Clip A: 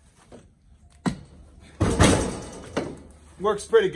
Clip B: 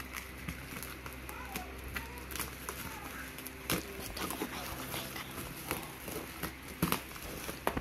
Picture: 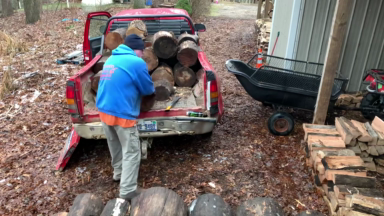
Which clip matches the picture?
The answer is A